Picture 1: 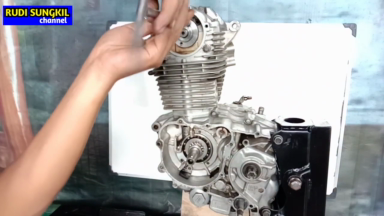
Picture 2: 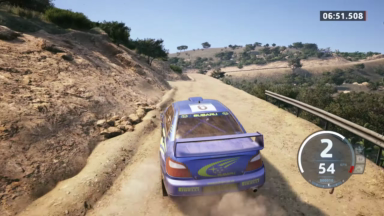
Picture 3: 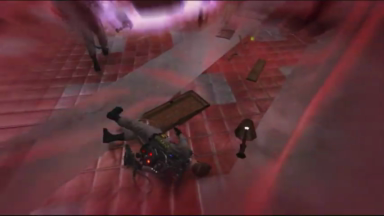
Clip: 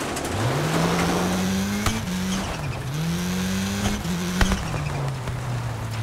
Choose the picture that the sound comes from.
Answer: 2